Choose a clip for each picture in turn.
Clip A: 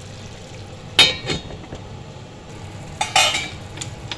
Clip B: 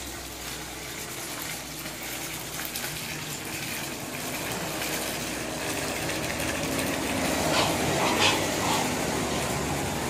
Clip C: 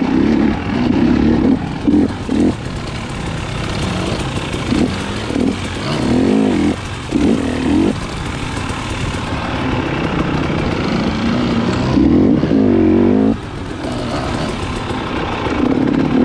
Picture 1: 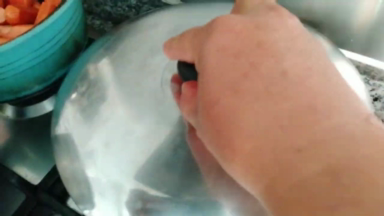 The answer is A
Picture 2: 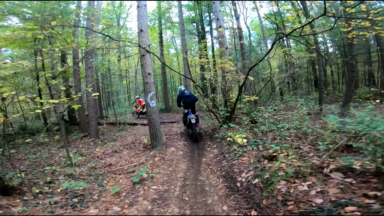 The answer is C